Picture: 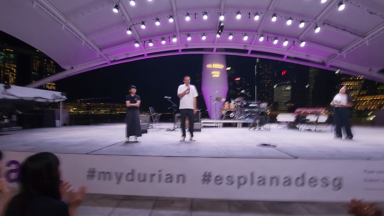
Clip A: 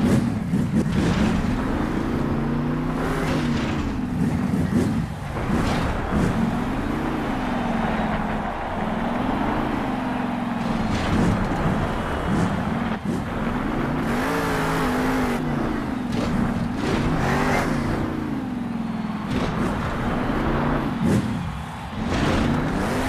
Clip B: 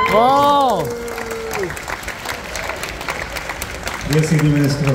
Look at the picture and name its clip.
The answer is B